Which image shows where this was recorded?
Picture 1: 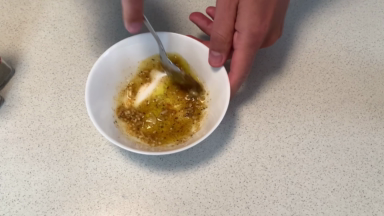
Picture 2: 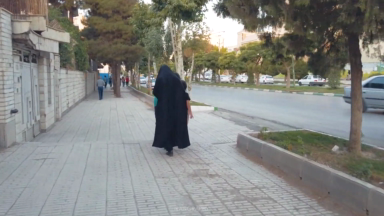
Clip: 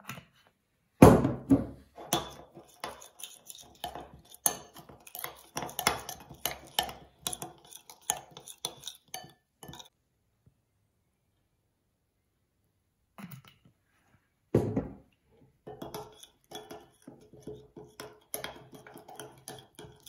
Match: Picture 1